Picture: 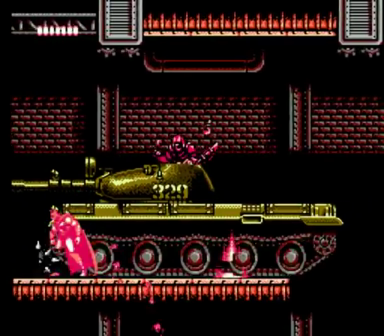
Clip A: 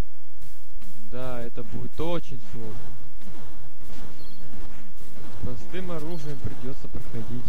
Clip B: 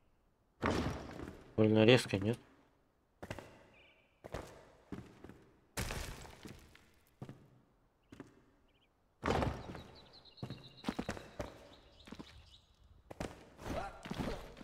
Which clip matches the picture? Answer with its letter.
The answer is A